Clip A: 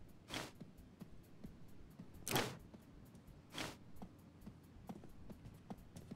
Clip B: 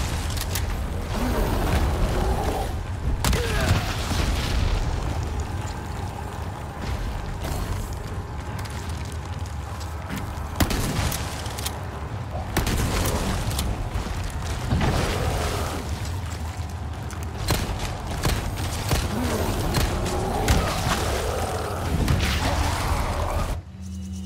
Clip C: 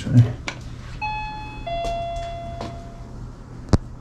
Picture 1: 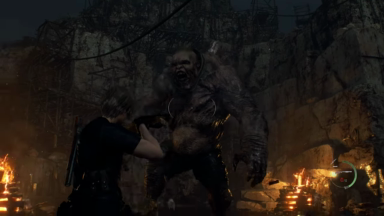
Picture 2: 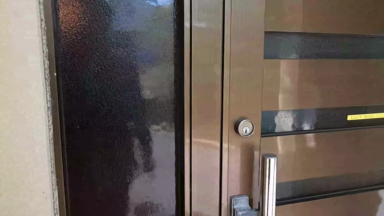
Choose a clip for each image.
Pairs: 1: B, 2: C